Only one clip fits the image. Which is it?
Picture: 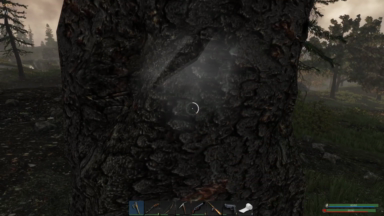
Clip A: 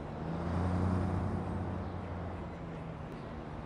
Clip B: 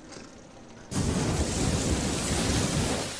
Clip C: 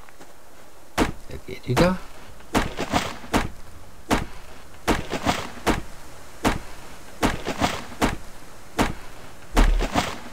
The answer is C